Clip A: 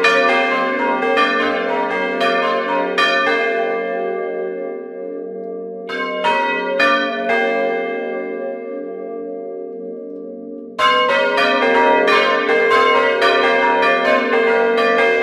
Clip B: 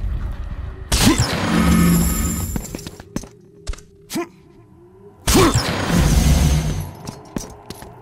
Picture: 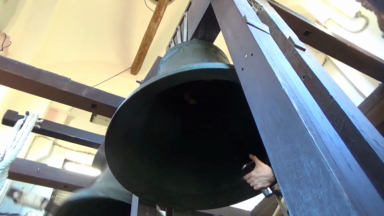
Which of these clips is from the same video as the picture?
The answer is A